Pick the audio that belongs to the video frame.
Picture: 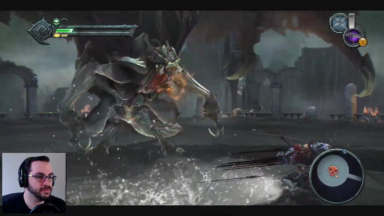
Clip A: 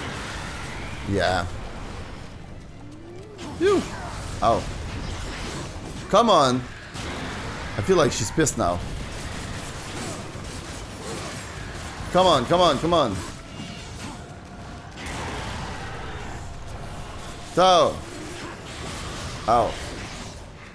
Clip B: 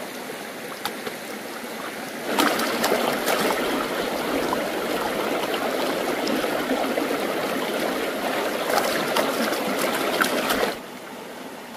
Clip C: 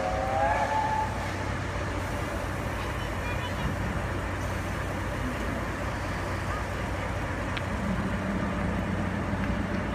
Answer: A